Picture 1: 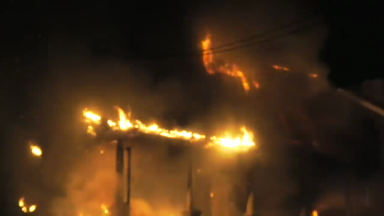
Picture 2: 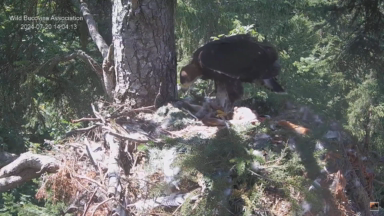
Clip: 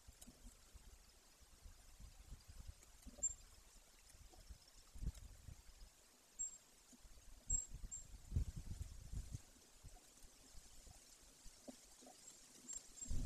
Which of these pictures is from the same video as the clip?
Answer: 2